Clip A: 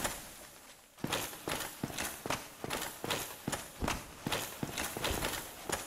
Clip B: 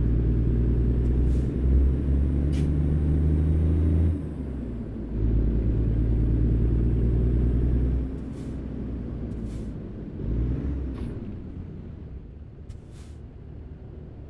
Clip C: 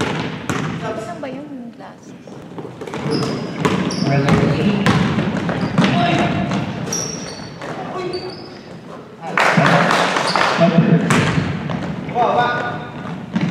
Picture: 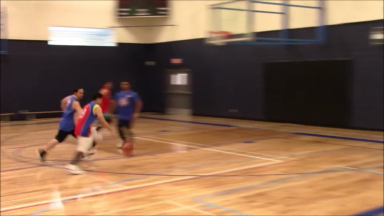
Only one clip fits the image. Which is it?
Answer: C